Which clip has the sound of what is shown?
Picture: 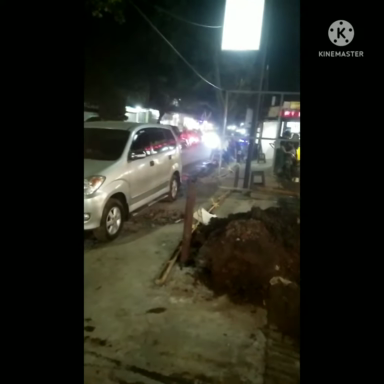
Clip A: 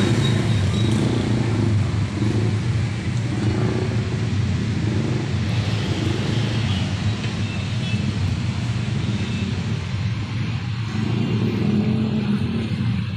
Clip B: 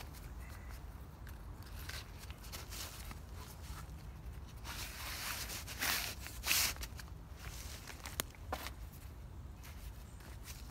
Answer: A